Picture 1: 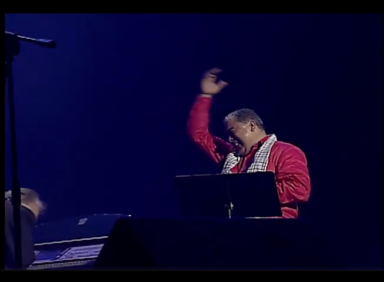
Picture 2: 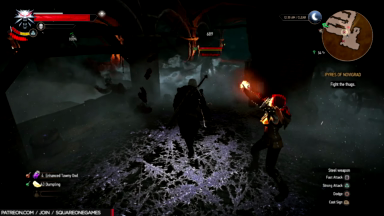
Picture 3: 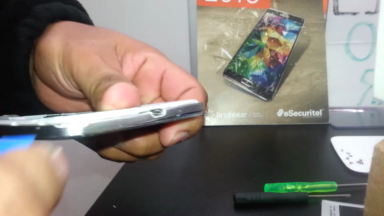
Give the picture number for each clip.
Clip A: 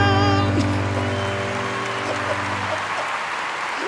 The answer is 1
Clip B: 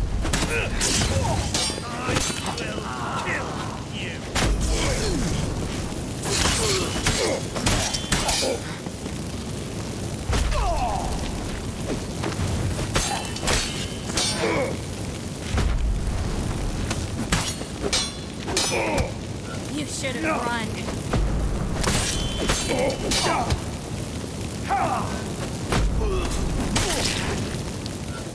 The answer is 2